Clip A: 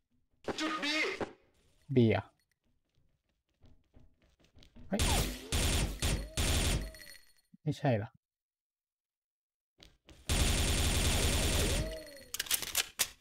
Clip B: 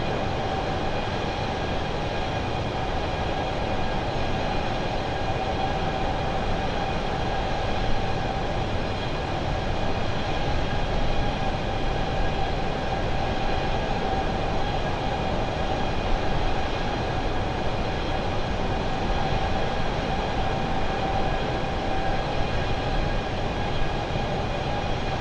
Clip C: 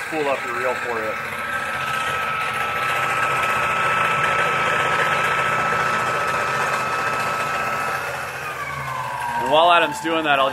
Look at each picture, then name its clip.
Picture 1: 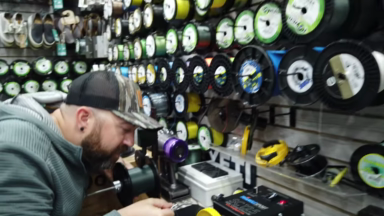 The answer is C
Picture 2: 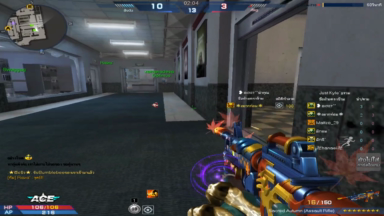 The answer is A